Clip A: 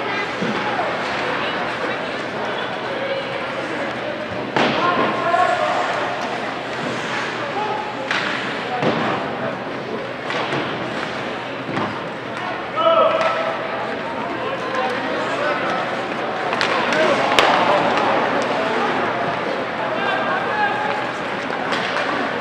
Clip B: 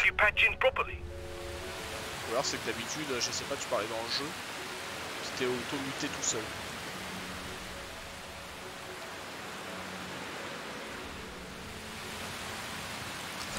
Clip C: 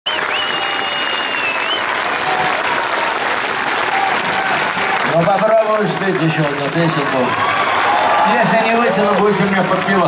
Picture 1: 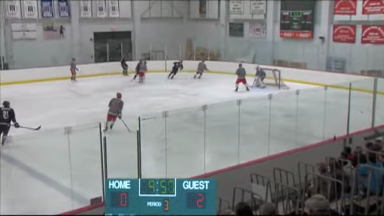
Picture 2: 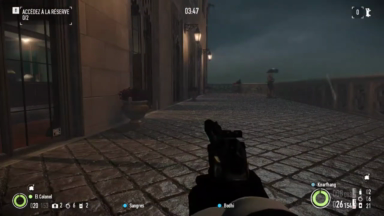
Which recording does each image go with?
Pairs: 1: A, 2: B